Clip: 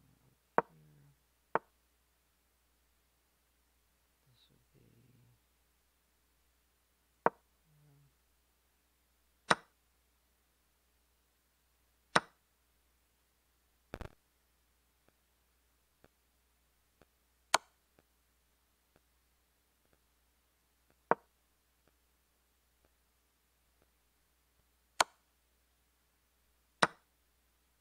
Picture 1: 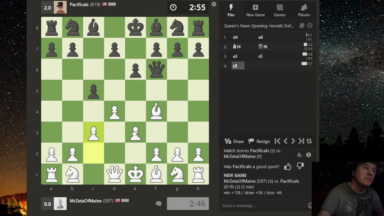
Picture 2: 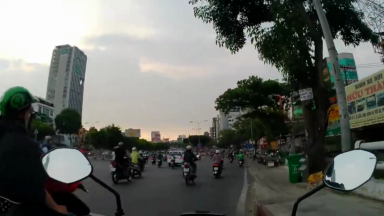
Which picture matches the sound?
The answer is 1